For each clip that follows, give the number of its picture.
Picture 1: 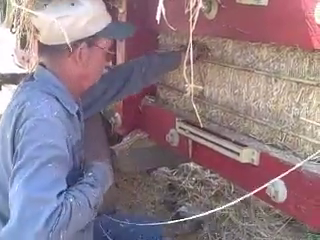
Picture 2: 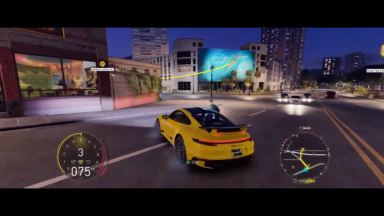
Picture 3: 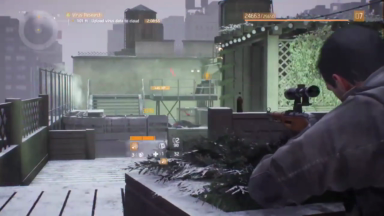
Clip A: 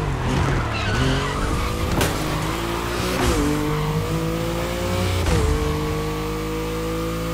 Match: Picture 2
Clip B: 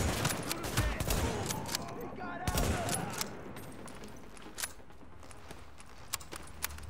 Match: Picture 3